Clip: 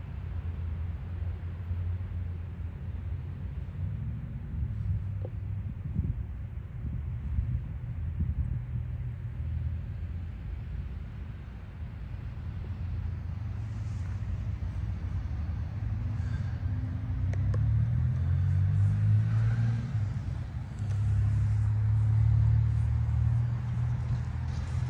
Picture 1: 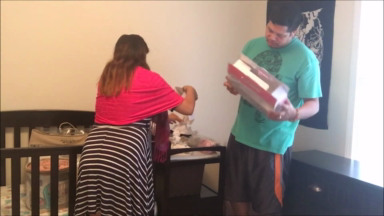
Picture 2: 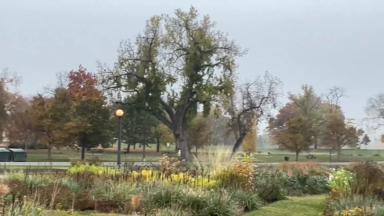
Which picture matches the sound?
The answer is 2